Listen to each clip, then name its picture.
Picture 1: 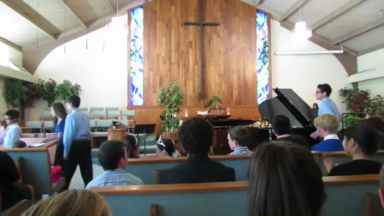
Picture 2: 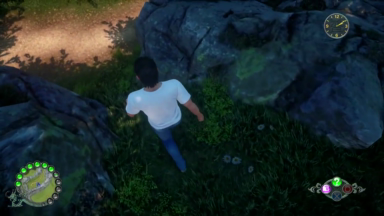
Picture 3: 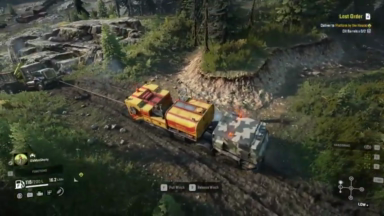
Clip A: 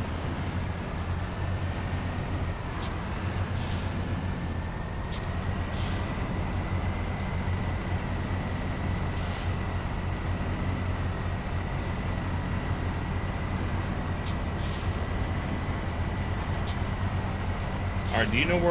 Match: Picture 3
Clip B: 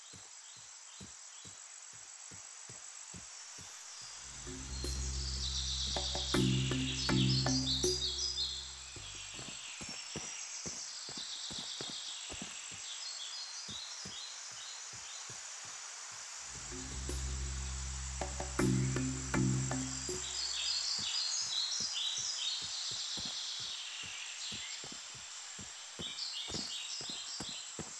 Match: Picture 2